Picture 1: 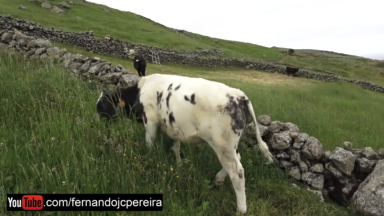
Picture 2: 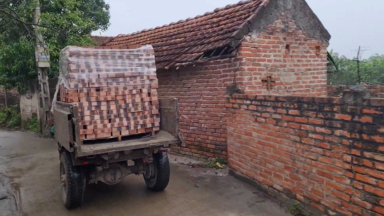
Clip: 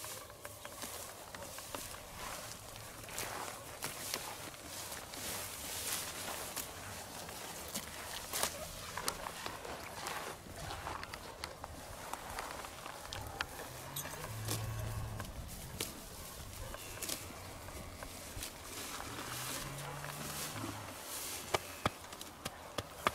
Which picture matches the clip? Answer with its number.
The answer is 1